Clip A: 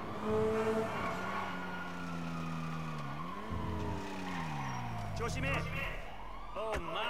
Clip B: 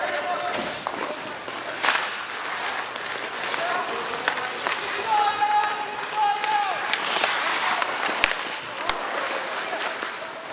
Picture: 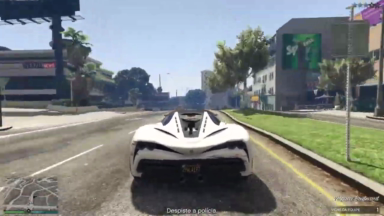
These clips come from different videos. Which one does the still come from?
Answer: A